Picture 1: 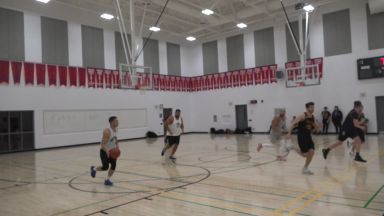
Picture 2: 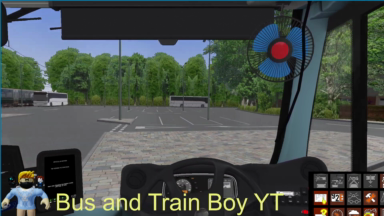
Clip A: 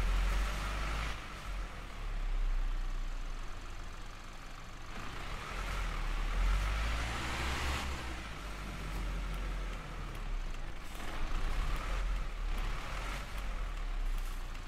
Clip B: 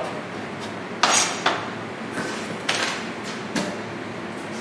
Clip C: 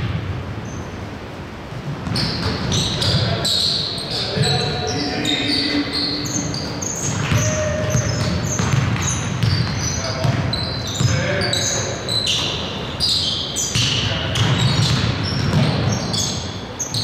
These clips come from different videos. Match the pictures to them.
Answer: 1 C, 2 A